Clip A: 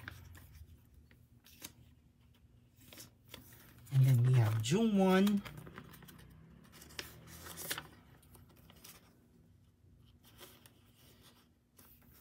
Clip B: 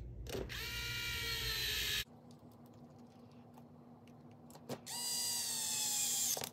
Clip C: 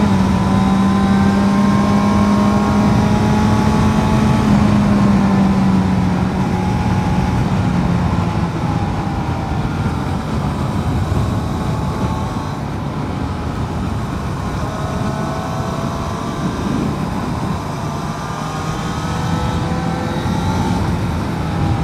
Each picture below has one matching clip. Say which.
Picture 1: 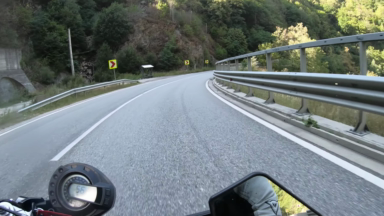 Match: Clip C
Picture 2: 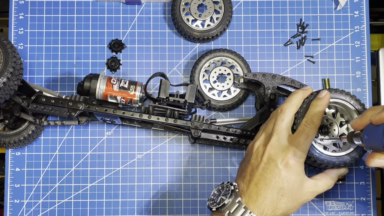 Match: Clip B